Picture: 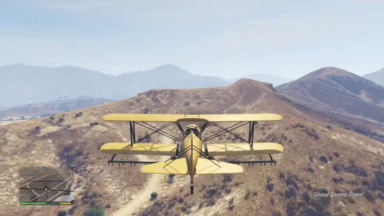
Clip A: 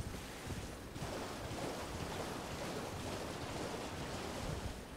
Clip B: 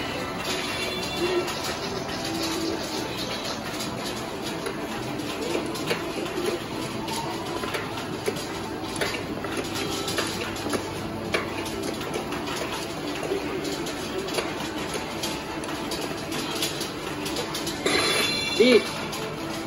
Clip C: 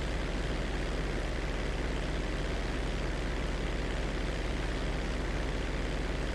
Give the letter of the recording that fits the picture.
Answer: C